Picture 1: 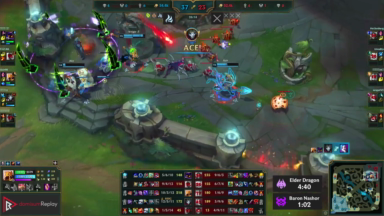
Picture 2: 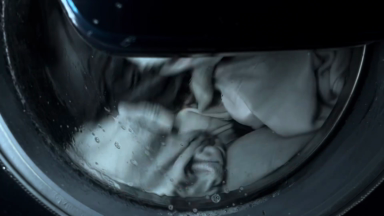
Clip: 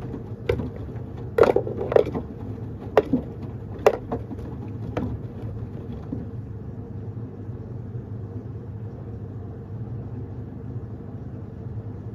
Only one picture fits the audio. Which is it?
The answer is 2